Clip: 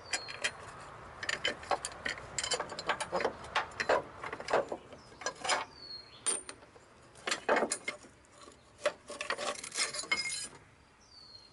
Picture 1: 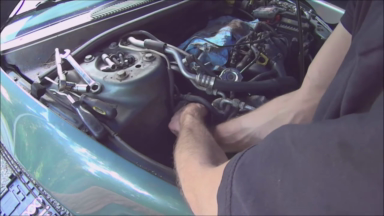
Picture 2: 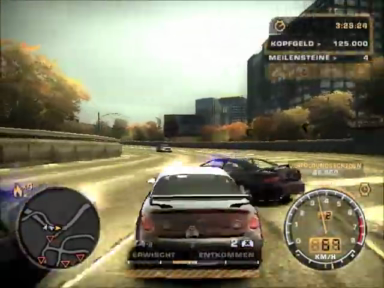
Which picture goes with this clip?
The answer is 1